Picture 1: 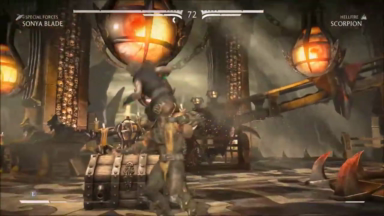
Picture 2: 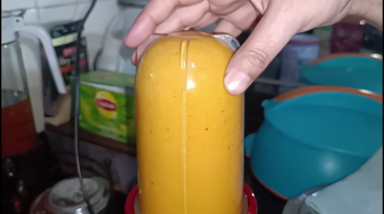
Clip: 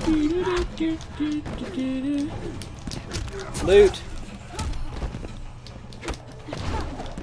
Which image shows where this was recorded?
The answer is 1